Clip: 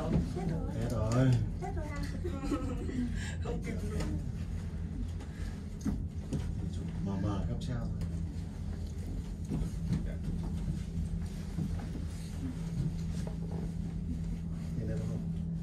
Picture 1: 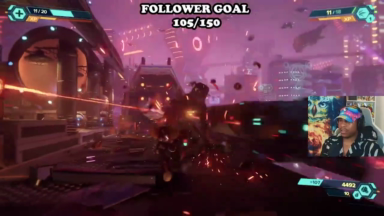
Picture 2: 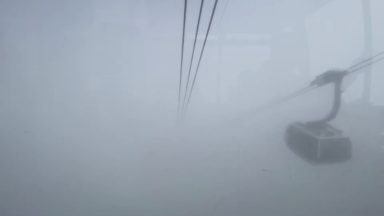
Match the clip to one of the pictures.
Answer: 2